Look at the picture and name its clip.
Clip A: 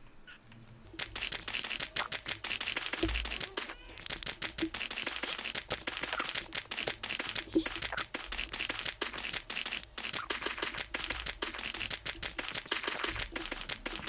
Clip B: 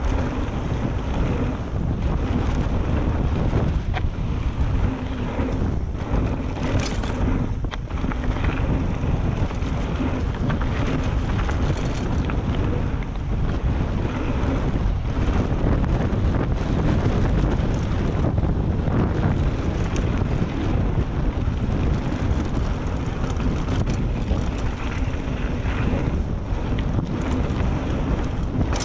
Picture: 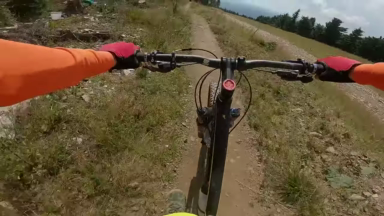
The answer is B